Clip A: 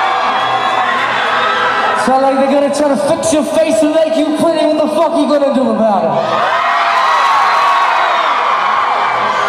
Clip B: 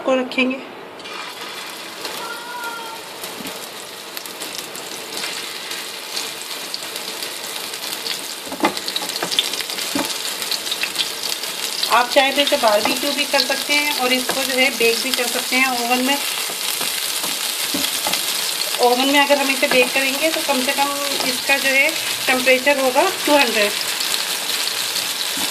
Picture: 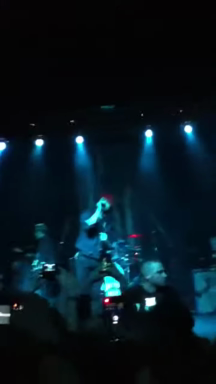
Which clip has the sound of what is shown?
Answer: A